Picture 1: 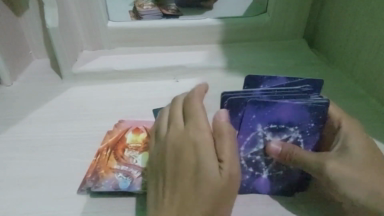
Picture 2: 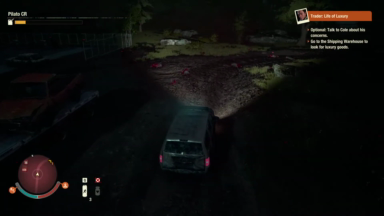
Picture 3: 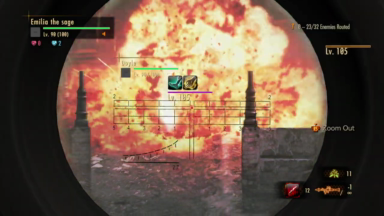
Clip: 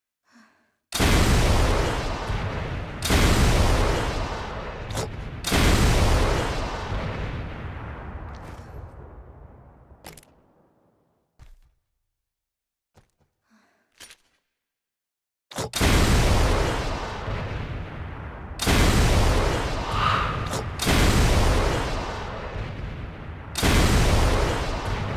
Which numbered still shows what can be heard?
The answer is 3